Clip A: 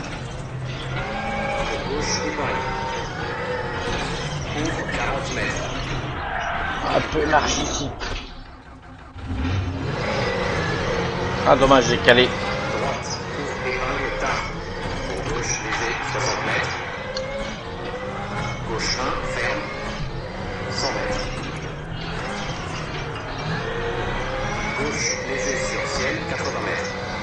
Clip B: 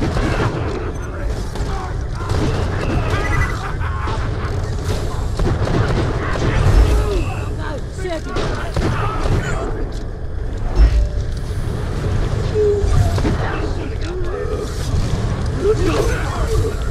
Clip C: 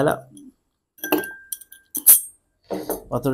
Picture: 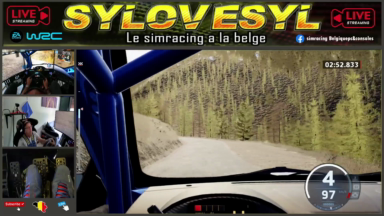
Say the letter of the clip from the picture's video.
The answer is A